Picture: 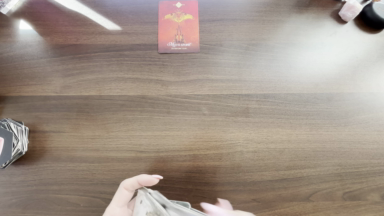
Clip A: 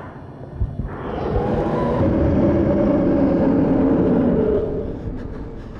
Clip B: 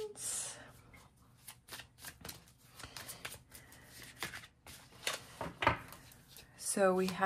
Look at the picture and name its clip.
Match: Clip B